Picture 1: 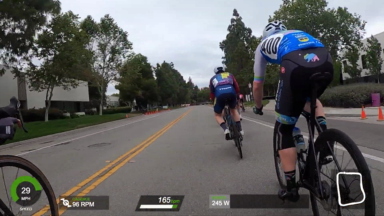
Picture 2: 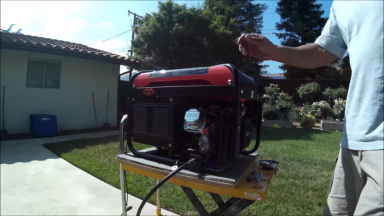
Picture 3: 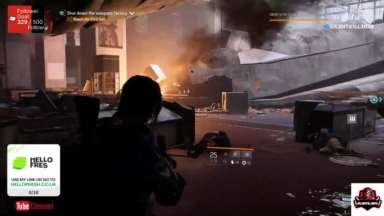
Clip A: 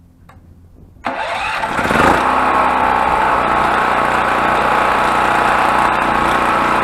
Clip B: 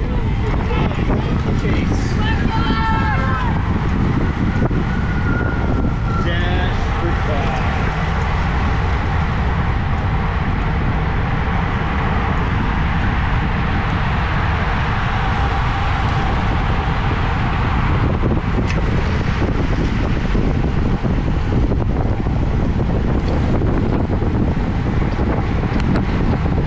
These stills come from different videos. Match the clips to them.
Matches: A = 2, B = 1